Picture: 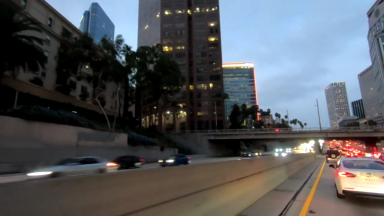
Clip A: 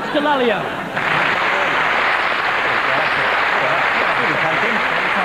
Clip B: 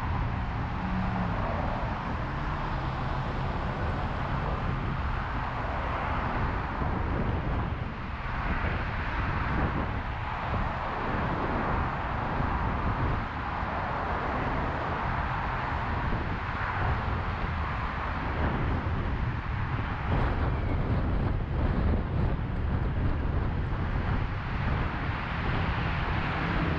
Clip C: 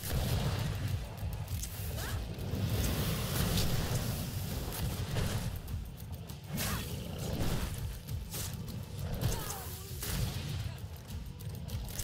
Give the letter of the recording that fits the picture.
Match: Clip B